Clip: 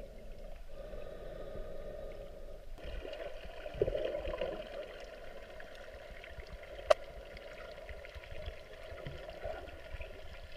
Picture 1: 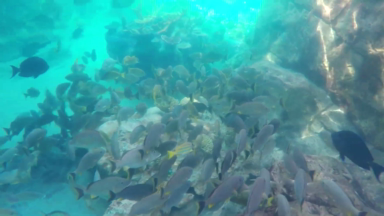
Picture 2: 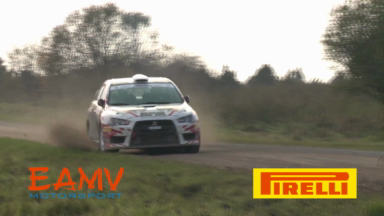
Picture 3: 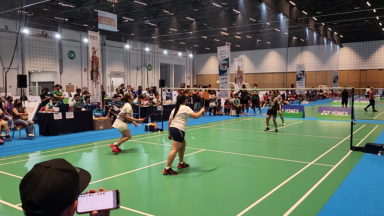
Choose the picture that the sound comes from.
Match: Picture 1